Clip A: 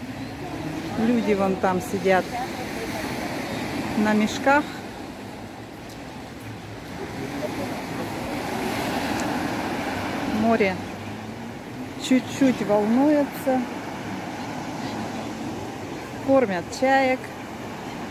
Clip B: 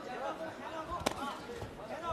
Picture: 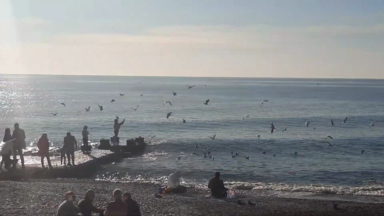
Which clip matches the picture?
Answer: A